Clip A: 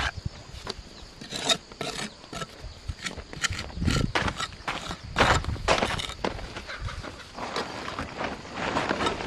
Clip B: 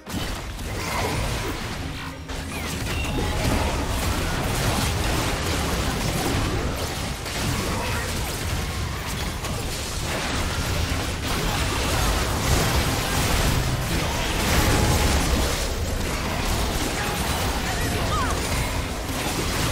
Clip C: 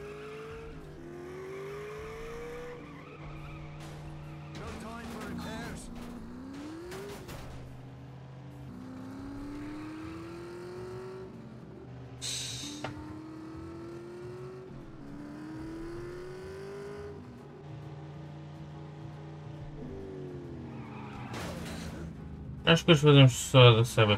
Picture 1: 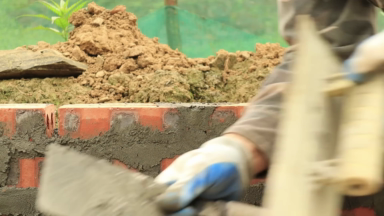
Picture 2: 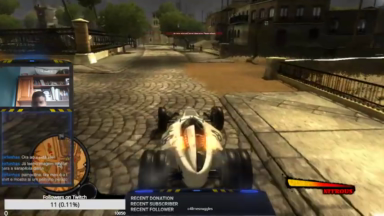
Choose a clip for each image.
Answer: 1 A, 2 C